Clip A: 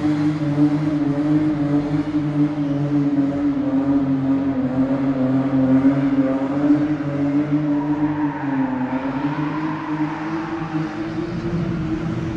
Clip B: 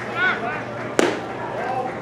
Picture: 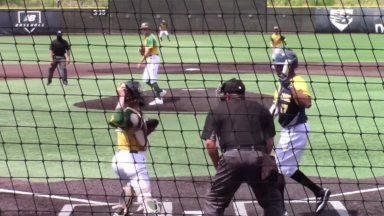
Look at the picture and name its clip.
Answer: B